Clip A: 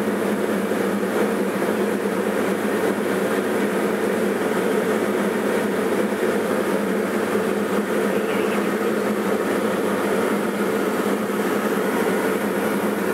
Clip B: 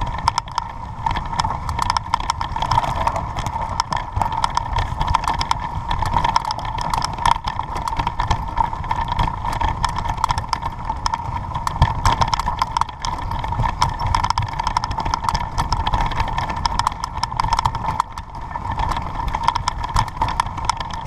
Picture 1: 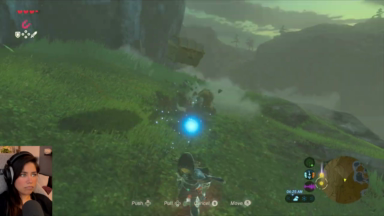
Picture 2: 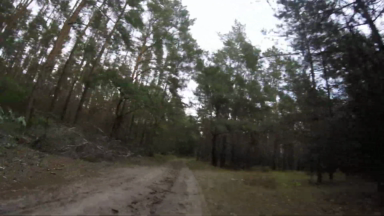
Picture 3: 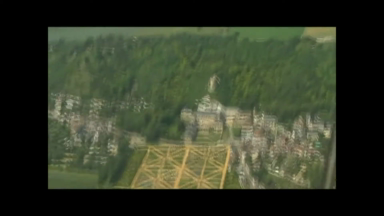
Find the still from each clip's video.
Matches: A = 3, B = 2